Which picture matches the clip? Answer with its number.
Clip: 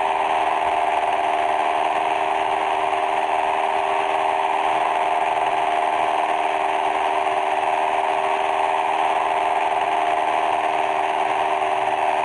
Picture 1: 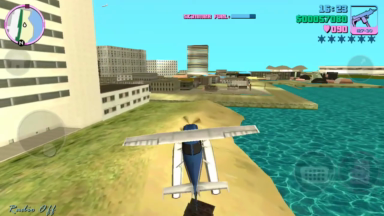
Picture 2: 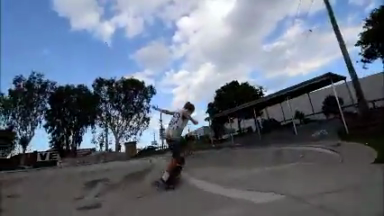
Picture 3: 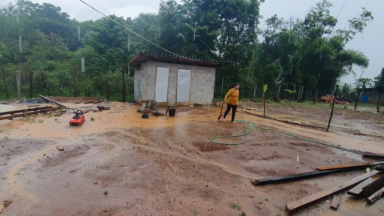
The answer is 1